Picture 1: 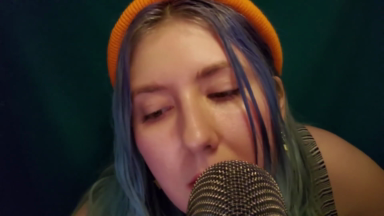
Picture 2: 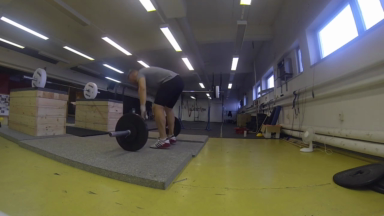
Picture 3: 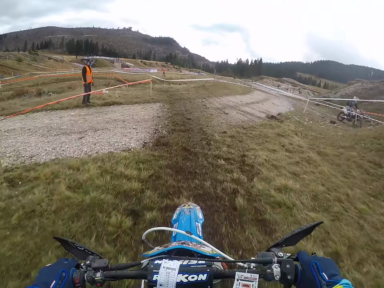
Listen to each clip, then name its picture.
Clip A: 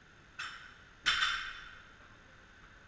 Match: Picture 2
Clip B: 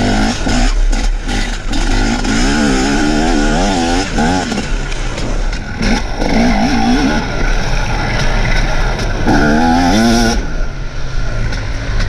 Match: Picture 3